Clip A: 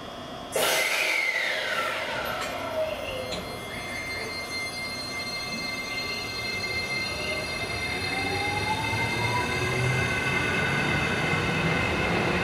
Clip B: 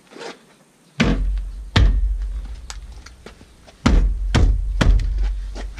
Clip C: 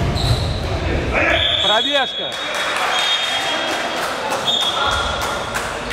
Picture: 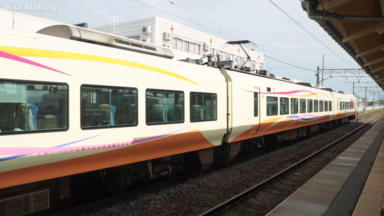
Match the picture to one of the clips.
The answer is A